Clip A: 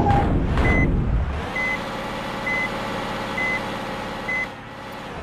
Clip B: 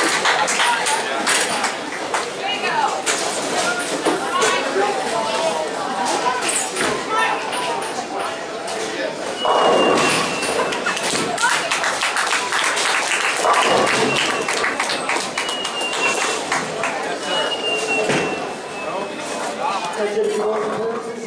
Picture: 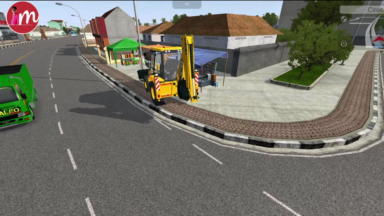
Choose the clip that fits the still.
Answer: A